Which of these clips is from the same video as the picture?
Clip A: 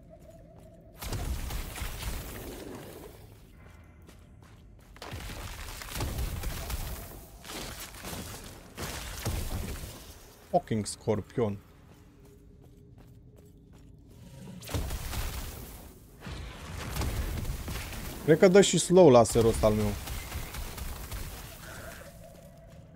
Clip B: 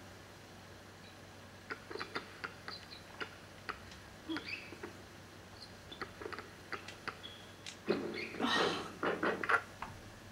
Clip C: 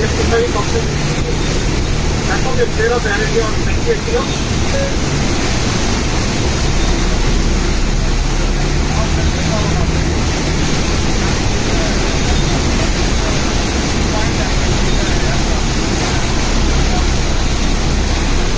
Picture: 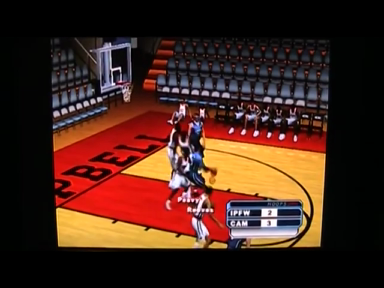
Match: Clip B